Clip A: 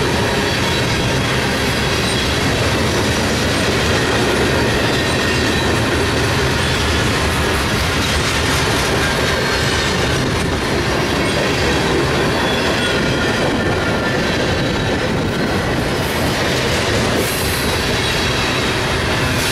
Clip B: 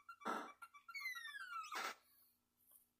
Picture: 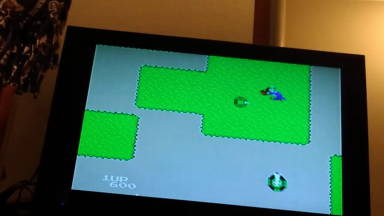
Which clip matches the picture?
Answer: B